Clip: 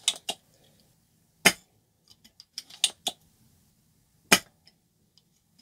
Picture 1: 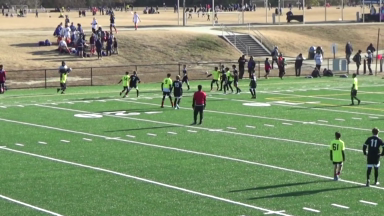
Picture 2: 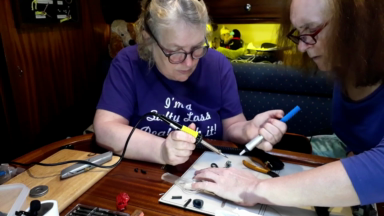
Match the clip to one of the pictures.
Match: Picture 2